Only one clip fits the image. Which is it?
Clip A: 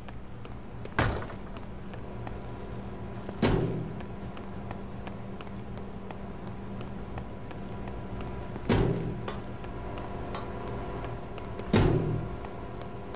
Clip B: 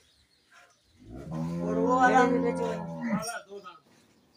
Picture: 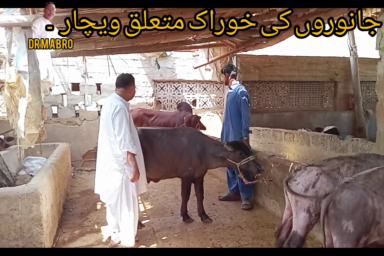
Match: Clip B